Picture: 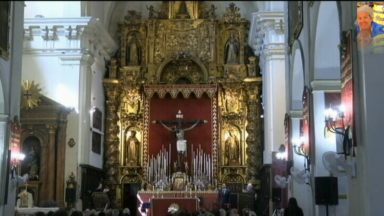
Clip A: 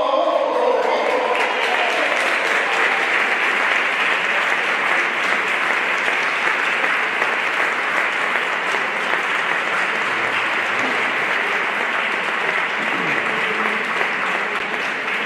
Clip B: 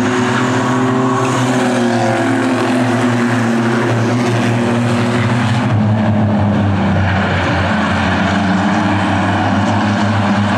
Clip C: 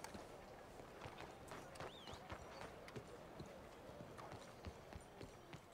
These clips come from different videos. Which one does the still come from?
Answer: A